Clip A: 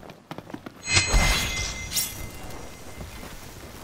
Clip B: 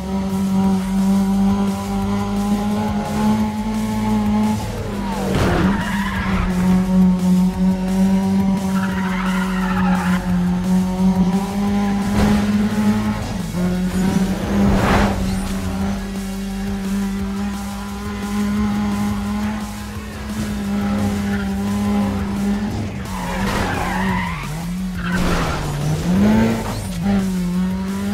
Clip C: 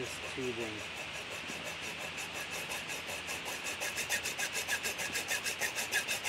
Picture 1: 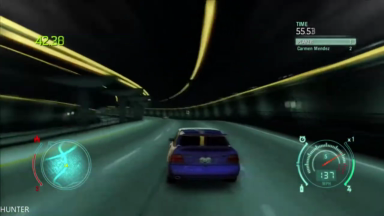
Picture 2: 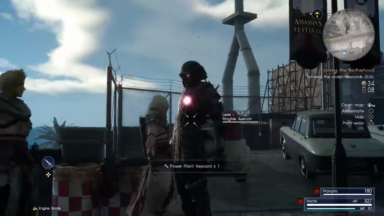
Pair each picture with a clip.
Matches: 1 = B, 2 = A